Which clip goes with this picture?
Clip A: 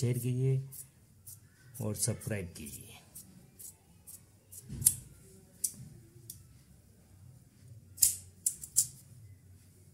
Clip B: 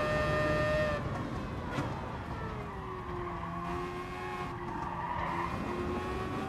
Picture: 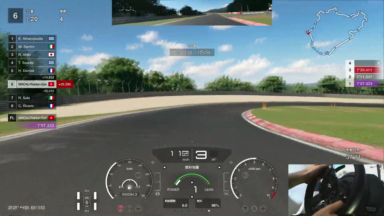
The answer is B